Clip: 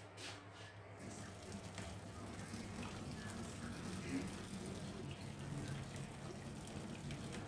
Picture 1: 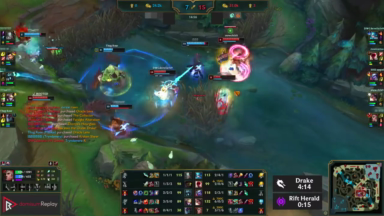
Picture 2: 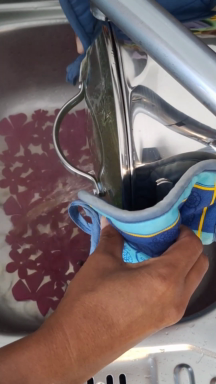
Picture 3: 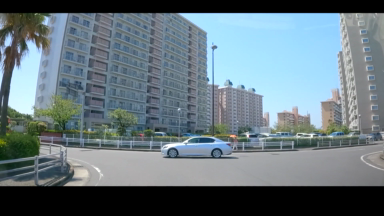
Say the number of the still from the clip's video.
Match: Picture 2